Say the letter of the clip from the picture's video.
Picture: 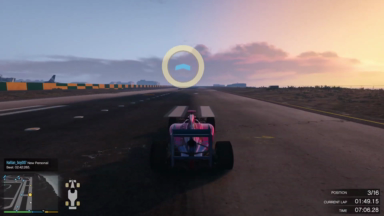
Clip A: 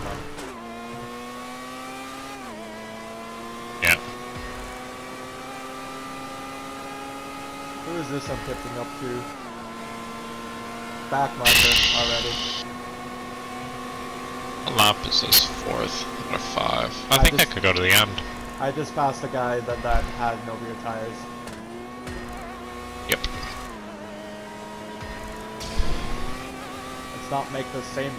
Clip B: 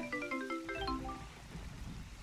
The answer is A